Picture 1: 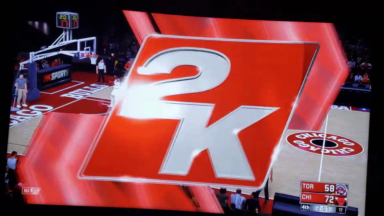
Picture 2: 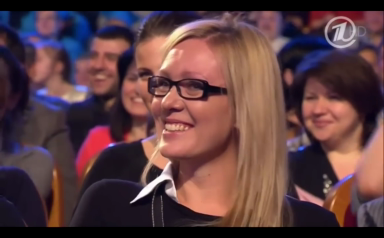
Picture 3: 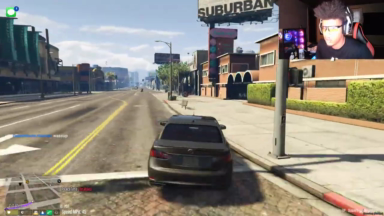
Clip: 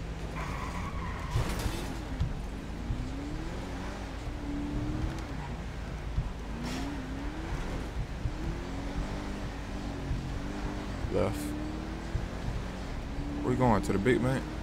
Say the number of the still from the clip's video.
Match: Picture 3